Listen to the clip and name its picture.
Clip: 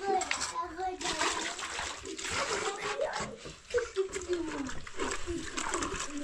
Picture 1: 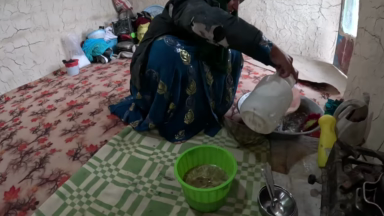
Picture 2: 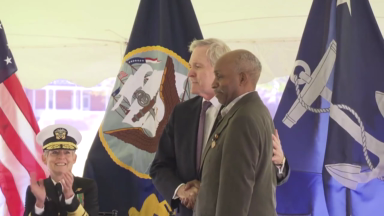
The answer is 1